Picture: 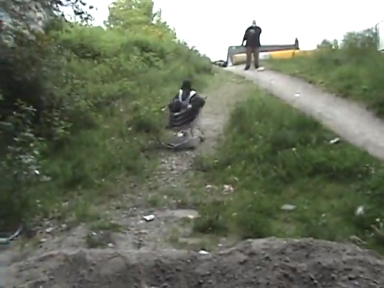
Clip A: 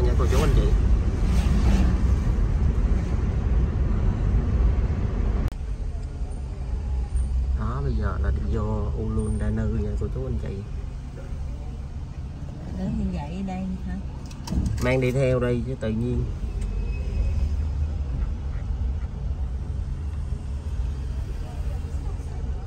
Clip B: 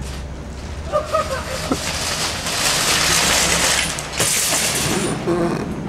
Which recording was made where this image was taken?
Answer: B